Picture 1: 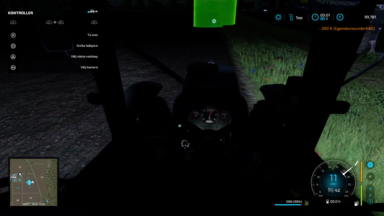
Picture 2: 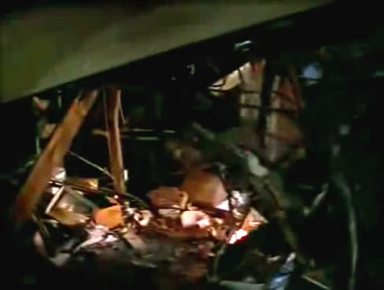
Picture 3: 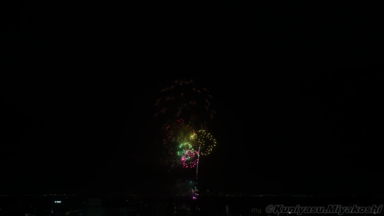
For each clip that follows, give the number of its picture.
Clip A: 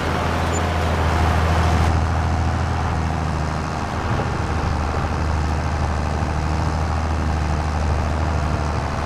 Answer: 1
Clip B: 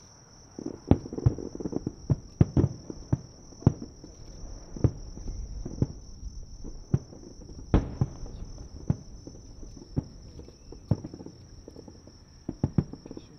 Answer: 3